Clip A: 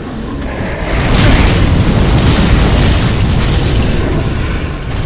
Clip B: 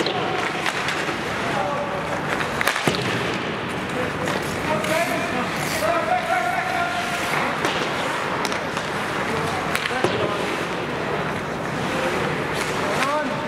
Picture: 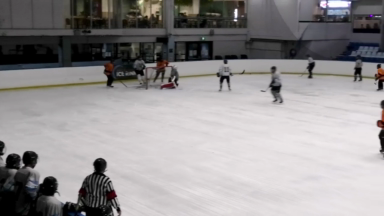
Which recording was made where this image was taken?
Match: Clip B